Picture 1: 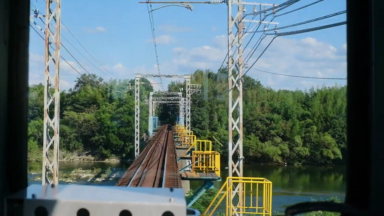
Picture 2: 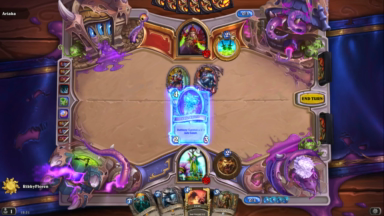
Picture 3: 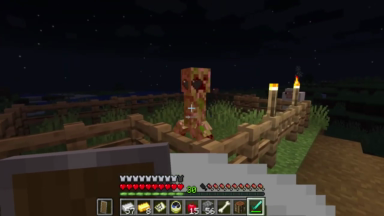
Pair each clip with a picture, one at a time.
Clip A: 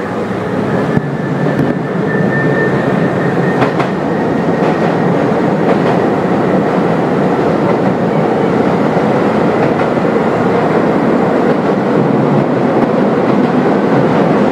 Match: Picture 1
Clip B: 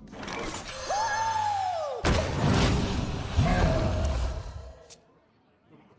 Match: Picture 2